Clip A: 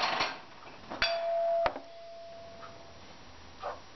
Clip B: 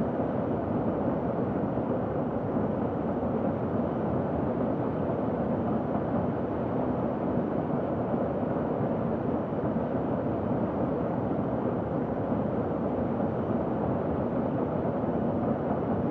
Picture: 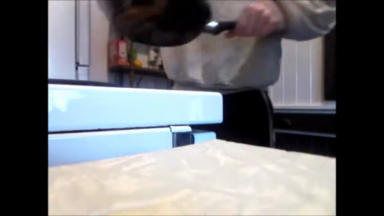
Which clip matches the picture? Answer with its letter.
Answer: A